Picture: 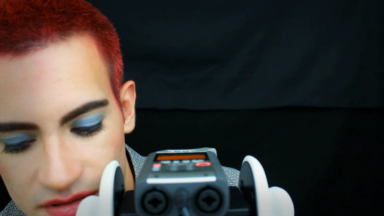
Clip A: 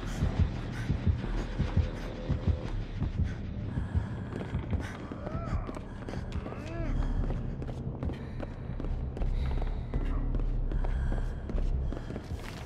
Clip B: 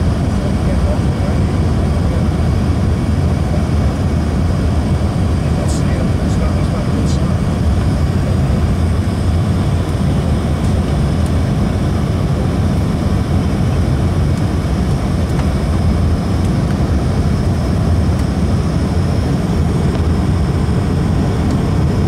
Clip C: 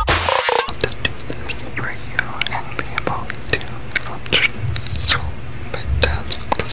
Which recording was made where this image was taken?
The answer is C